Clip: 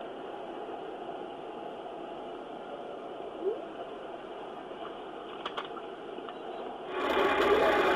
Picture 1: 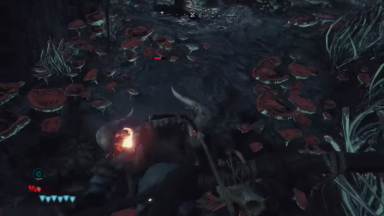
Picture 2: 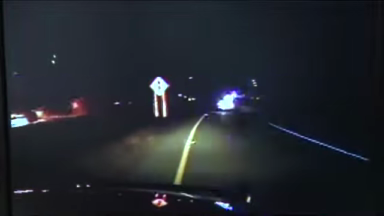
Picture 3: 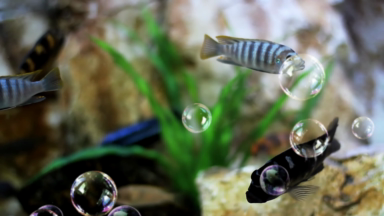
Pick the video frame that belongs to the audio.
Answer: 2